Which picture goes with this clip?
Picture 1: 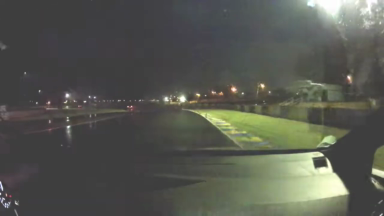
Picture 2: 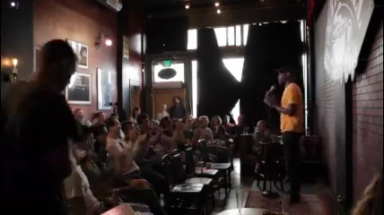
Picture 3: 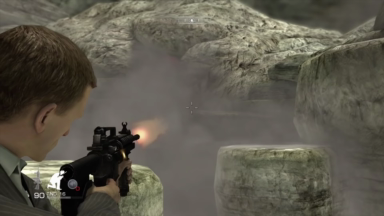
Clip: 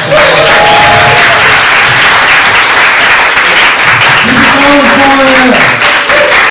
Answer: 2